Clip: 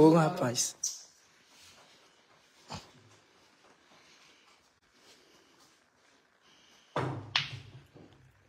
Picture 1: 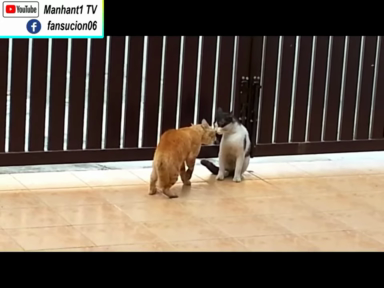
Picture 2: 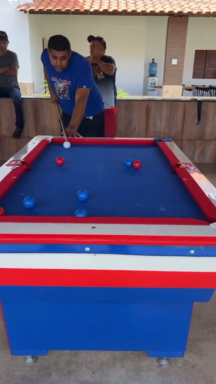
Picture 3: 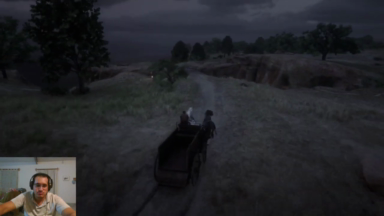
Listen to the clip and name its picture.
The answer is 2